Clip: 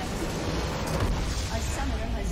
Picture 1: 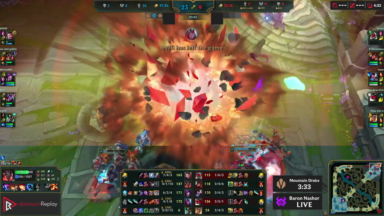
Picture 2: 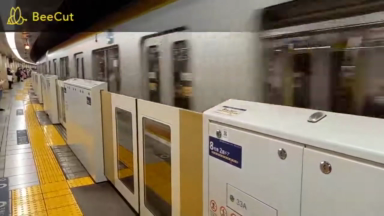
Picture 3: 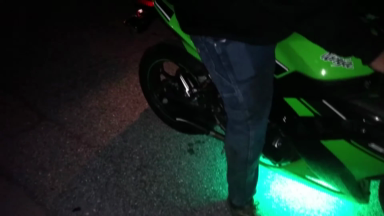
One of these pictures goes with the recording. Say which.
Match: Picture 1